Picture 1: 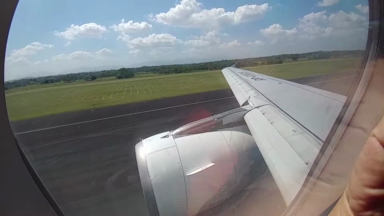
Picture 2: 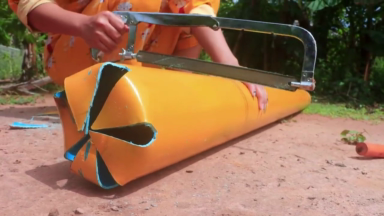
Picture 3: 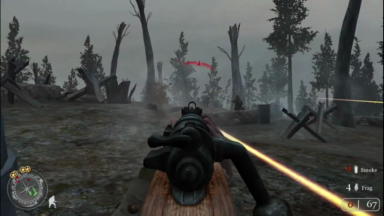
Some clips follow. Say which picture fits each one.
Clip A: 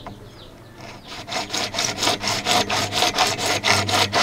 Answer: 2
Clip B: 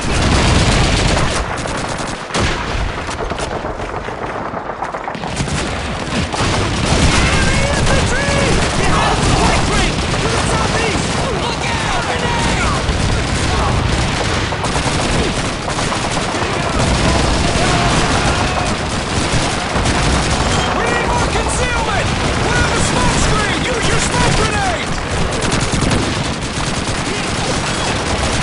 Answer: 3